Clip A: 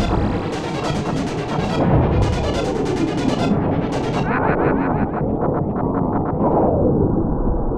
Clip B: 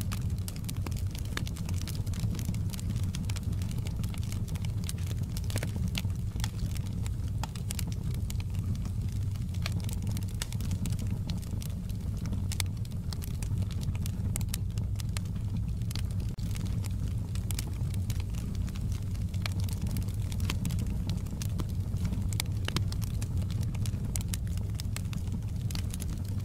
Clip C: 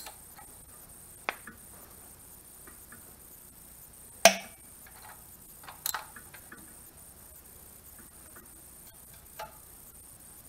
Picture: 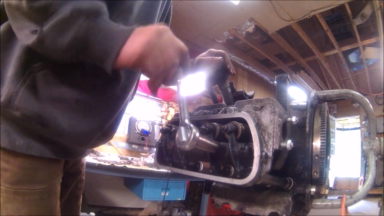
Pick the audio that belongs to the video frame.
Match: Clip C